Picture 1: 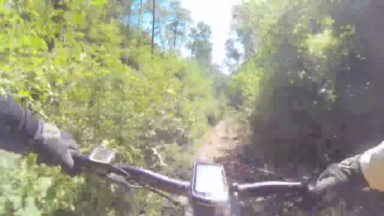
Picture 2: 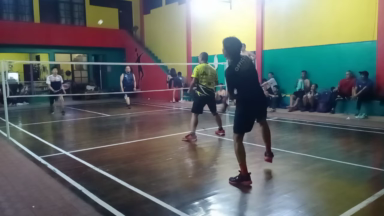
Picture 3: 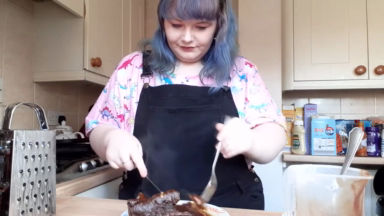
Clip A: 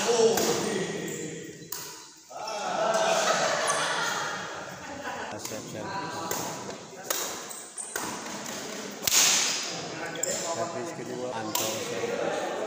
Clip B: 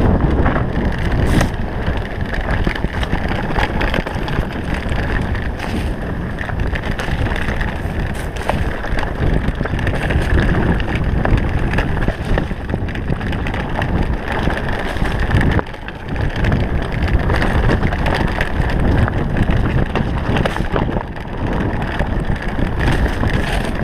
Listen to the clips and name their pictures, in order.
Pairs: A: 2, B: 1